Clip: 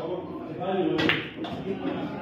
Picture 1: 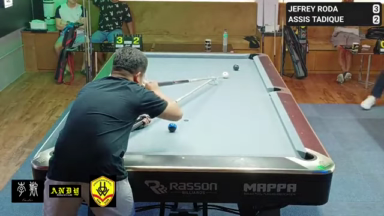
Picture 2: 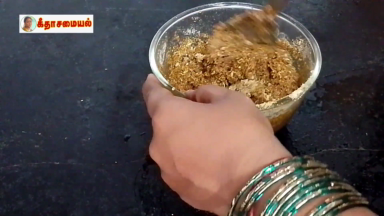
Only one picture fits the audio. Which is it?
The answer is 1